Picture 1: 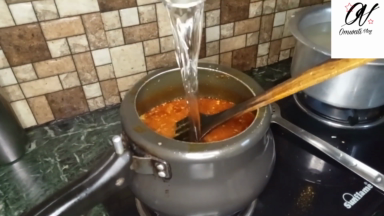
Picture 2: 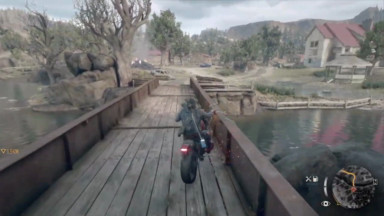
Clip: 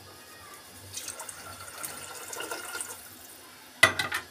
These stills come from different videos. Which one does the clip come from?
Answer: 1